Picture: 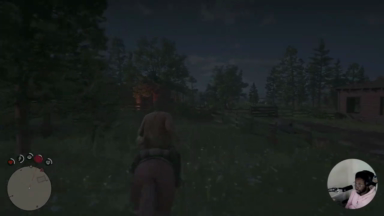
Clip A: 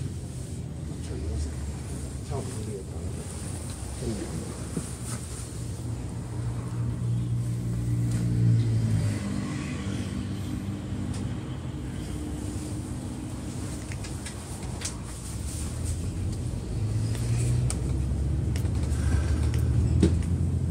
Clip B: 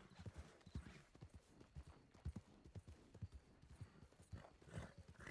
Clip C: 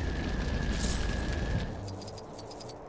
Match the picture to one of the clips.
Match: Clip B